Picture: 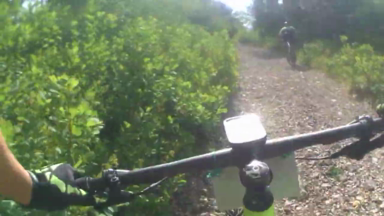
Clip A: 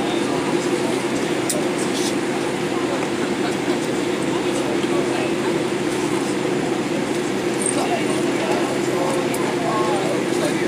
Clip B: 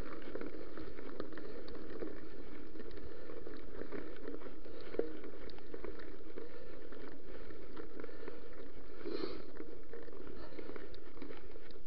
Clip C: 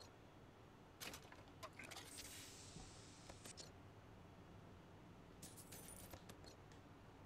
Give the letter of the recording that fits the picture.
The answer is B